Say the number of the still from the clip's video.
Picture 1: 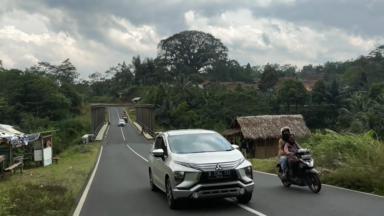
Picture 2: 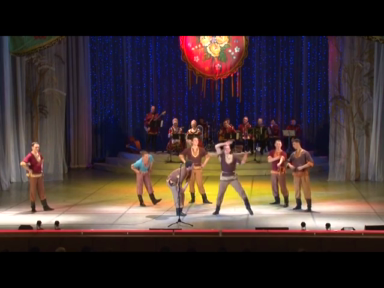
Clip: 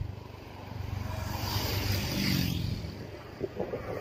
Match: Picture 1